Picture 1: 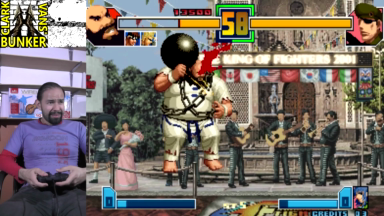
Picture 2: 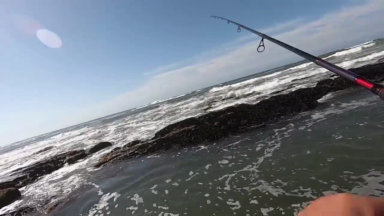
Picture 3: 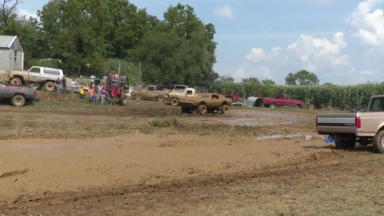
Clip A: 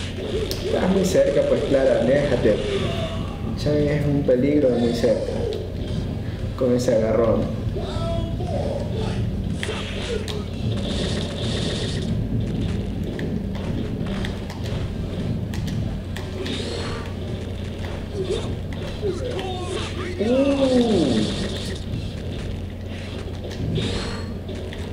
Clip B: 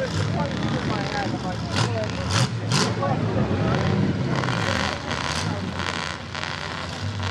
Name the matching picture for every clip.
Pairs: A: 1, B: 3